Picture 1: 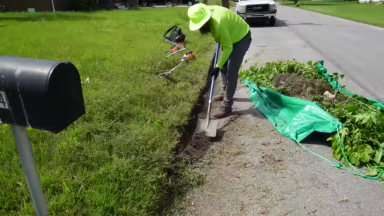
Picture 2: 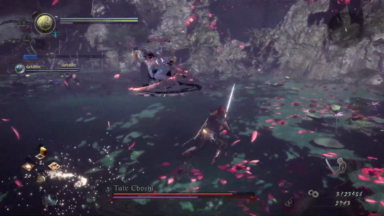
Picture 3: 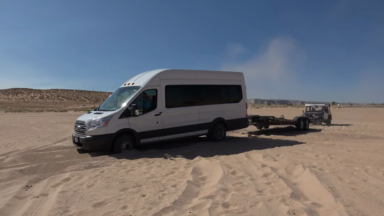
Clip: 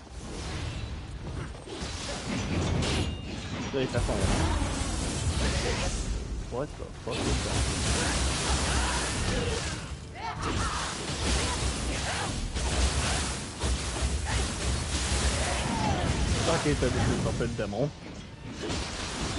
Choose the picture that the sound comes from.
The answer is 2